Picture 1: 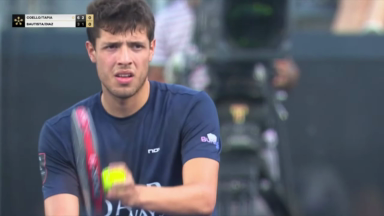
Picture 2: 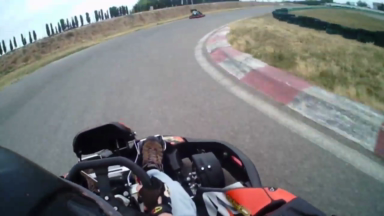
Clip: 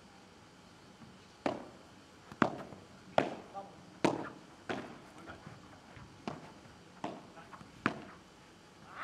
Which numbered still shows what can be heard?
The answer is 1